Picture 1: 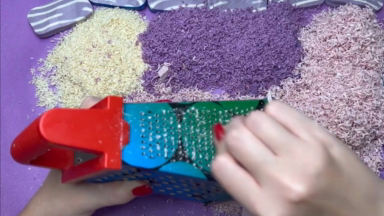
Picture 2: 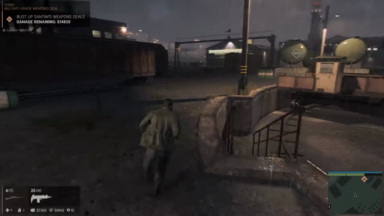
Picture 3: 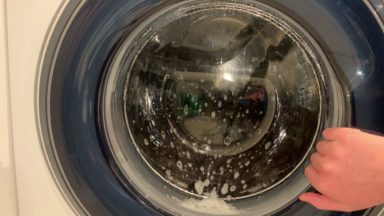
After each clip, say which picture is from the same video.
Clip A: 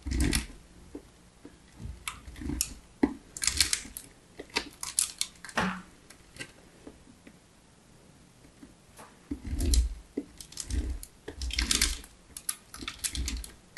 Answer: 1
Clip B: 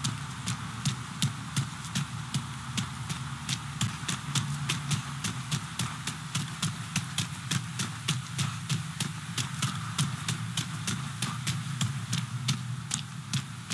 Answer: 2